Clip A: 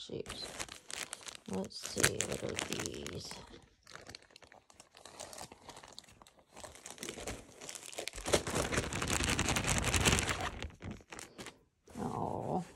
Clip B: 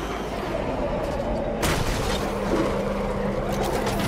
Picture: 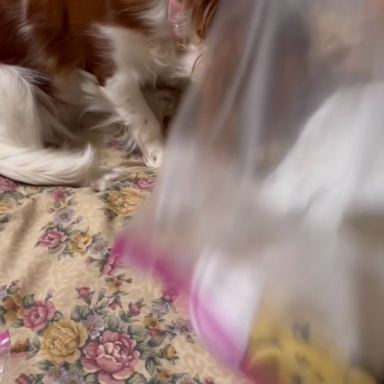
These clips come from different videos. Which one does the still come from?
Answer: A